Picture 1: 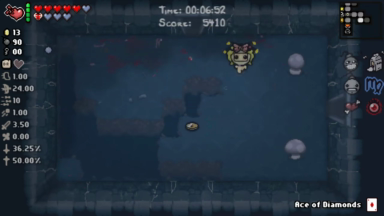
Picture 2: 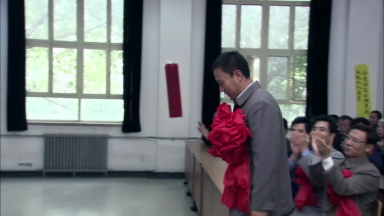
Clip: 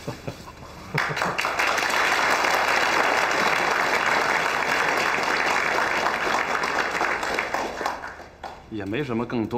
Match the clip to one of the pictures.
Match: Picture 2